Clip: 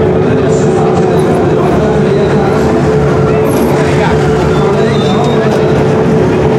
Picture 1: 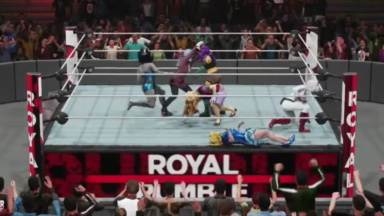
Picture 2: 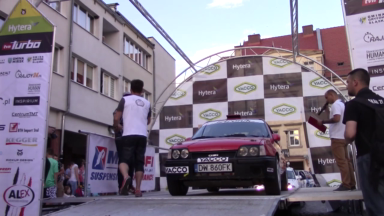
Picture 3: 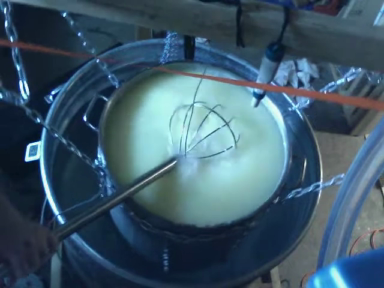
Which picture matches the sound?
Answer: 2